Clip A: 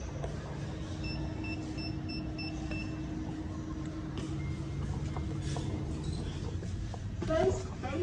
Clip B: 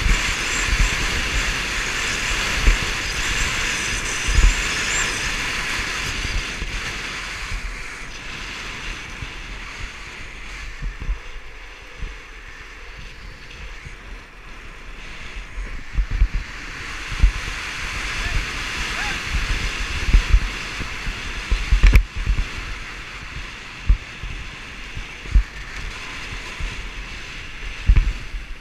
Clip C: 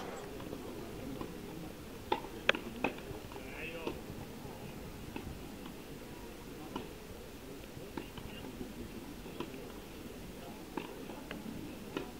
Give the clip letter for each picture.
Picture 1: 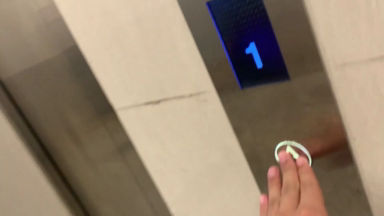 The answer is A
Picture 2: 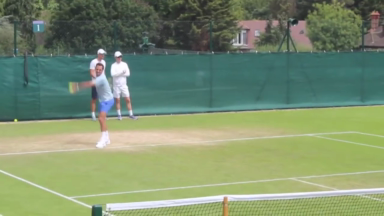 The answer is C